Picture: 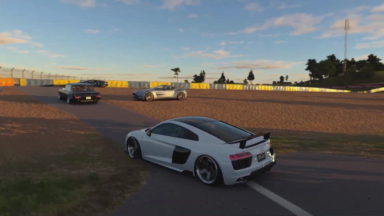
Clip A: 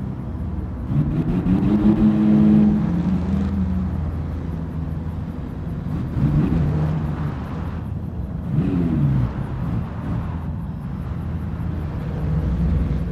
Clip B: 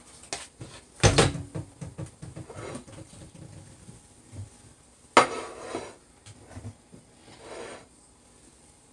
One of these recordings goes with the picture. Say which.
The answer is A